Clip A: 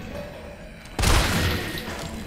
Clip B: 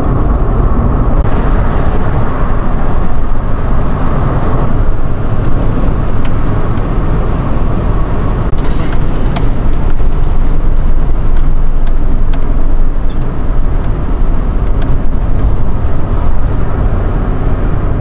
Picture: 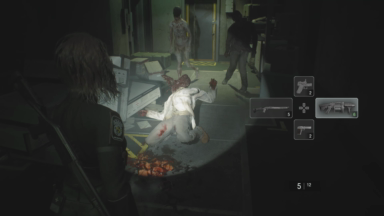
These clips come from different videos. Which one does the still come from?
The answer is A